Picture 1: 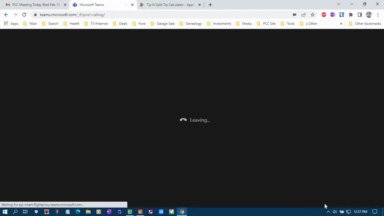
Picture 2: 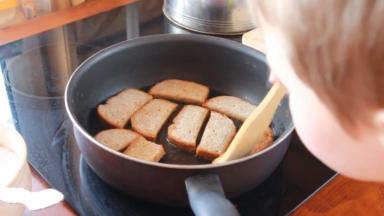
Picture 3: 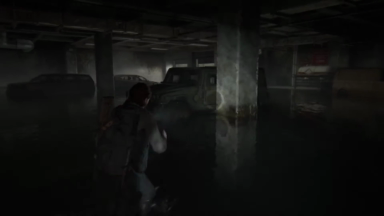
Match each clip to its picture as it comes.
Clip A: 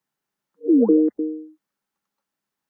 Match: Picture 1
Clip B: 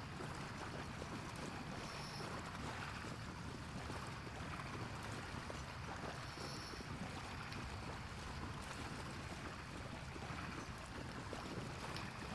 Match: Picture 3